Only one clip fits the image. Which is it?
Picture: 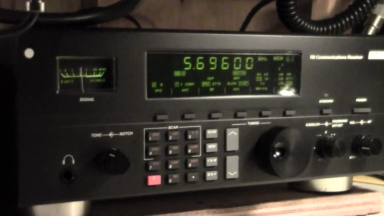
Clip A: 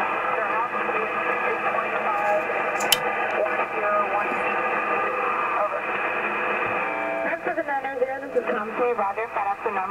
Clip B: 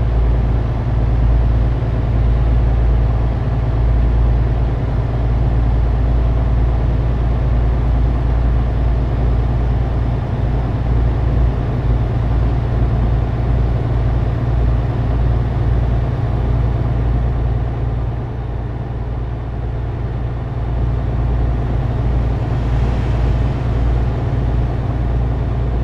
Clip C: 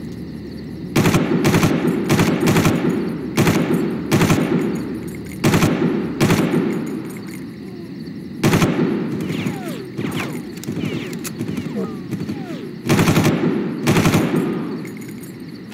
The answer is A